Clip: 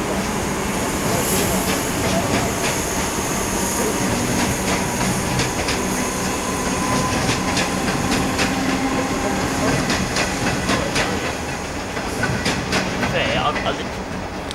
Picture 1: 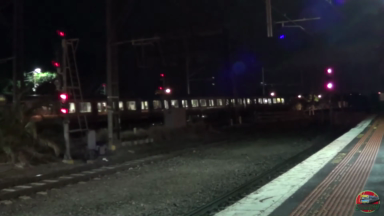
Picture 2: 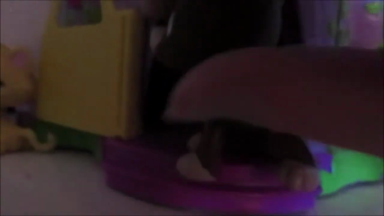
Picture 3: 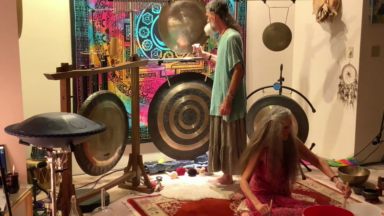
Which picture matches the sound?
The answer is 1